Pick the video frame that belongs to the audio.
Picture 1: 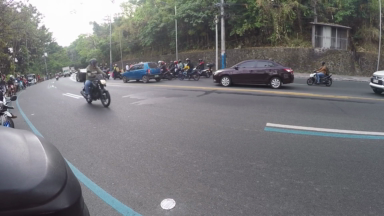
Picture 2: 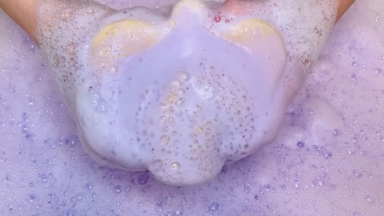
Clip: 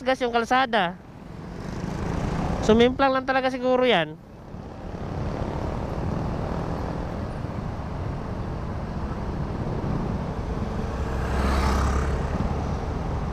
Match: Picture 1